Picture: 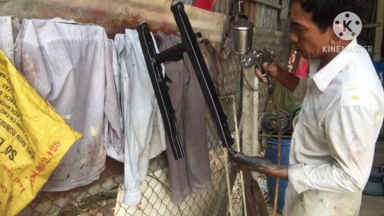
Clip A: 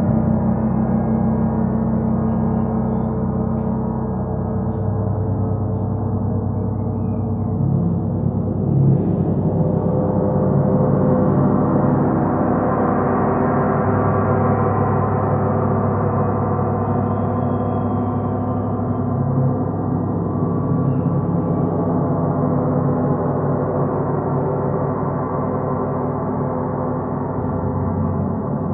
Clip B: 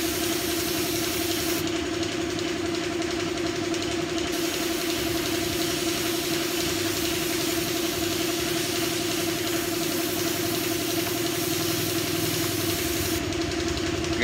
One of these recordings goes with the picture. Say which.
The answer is B